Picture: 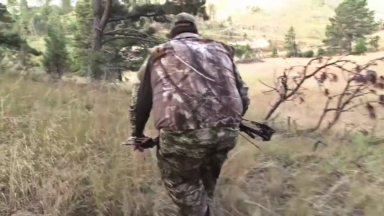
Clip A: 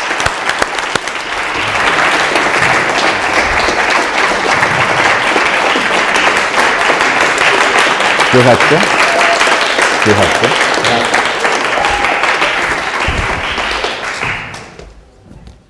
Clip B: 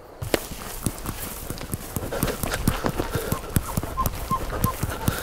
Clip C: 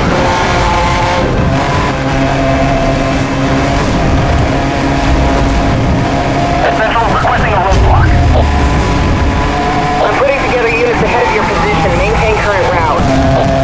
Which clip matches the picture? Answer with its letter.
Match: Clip B